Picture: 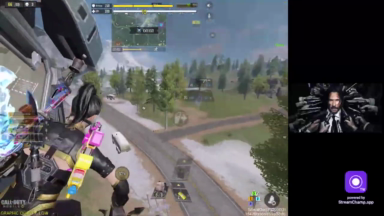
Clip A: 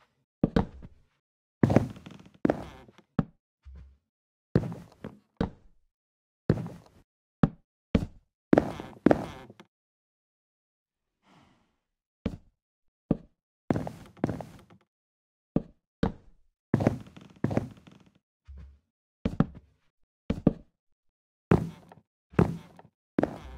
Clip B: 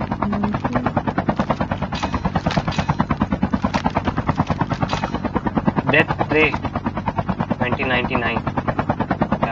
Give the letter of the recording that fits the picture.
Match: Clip B